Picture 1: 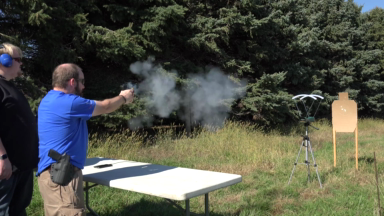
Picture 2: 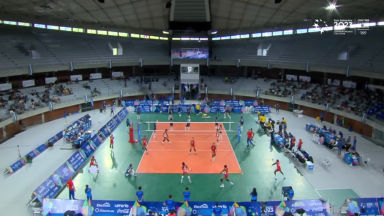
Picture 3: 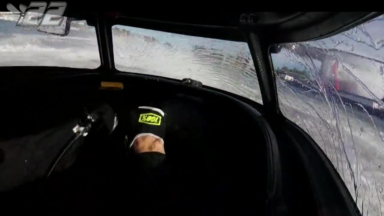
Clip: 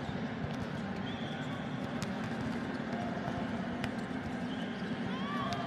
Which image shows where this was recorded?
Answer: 2